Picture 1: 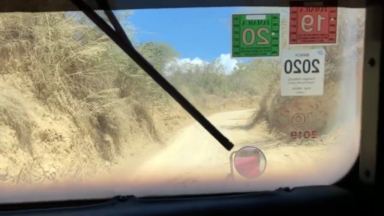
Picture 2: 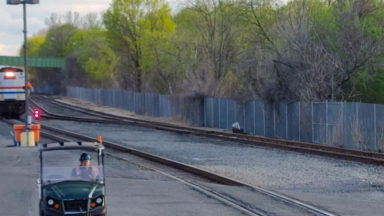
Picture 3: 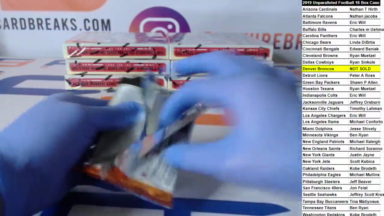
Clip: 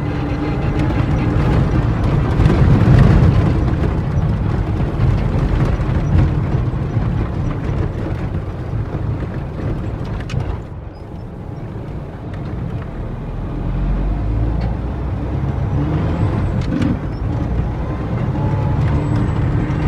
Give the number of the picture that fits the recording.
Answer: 1